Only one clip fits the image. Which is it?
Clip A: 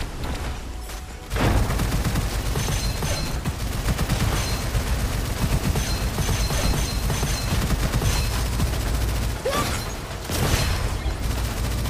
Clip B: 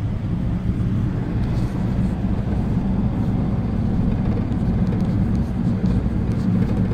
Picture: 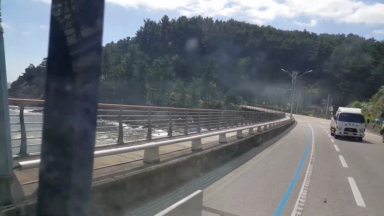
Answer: B